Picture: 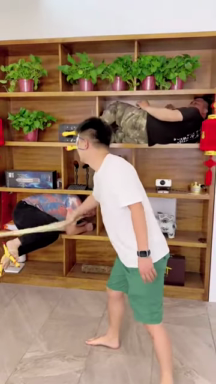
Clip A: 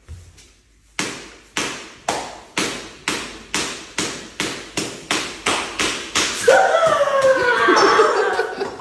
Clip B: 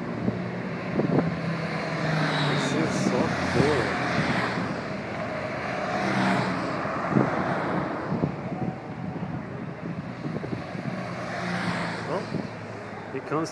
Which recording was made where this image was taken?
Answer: A